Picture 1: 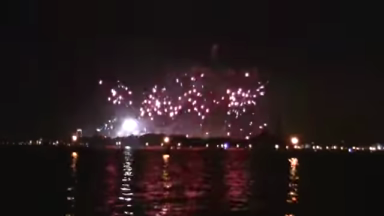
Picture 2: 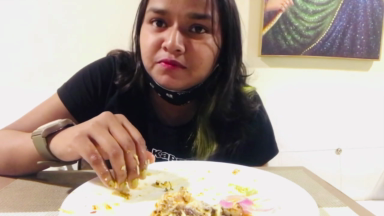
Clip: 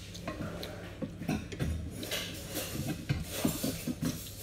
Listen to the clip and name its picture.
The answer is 2